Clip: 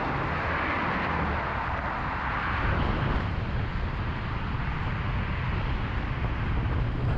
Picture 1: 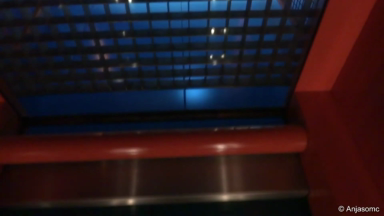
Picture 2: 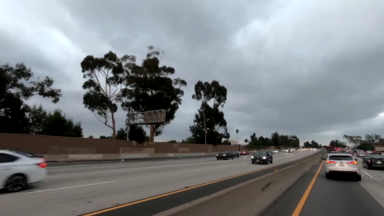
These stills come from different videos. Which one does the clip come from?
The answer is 2